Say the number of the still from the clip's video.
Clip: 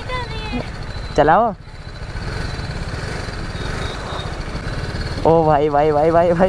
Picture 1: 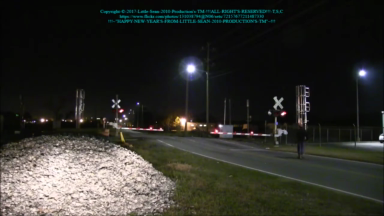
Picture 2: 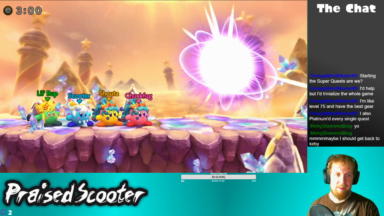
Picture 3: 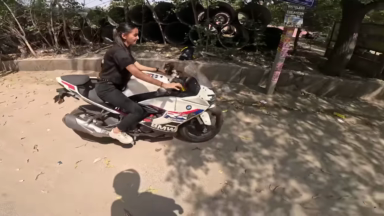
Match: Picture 3